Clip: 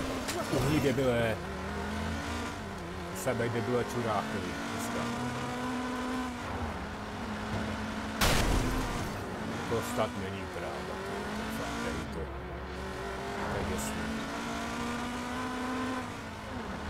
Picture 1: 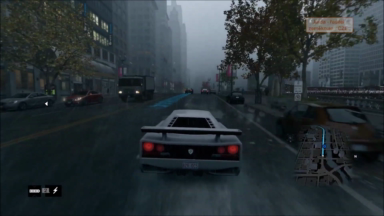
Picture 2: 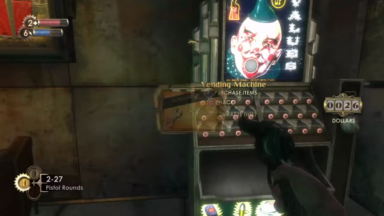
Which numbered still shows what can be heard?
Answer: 1